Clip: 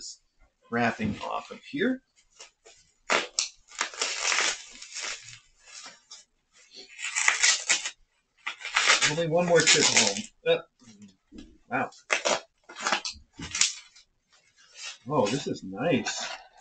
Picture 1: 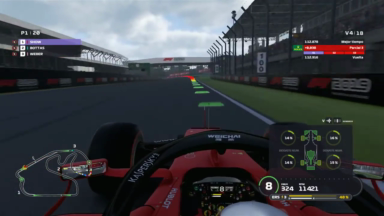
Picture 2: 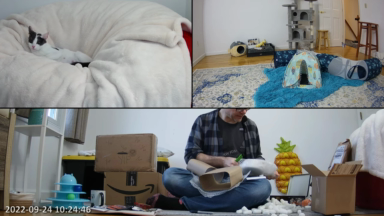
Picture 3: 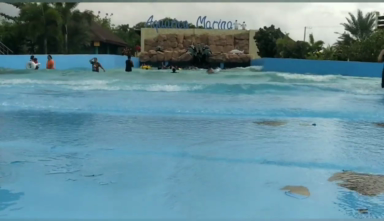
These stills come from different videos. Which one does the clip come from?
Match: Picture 2